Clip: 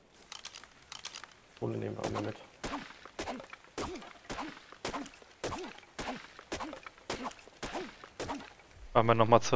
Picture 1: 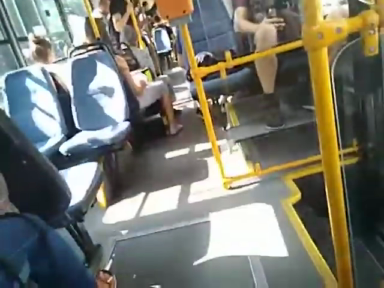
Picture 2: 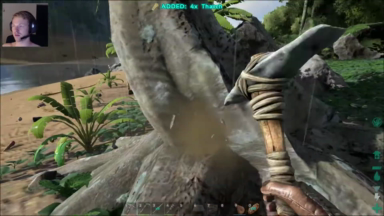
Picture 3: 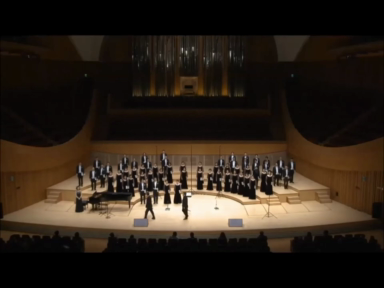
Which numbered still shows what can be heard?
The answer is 2